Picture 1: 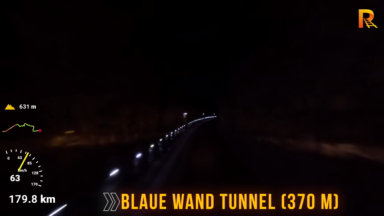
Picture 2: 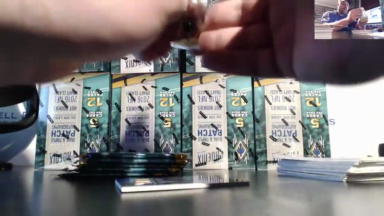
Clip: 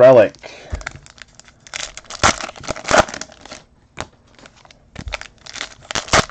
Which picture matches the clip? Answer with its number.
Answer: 2